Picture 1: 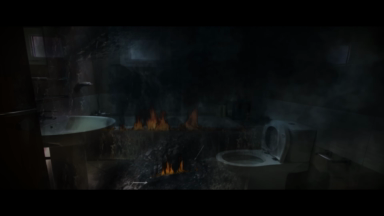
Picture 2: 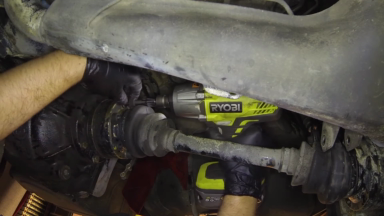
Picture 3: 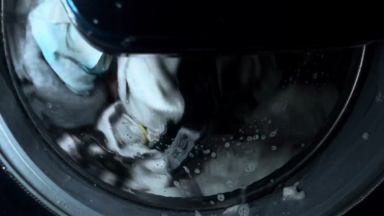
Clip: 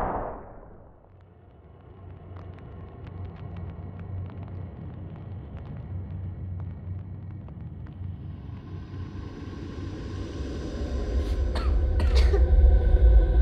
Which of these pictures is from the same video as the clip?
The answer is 1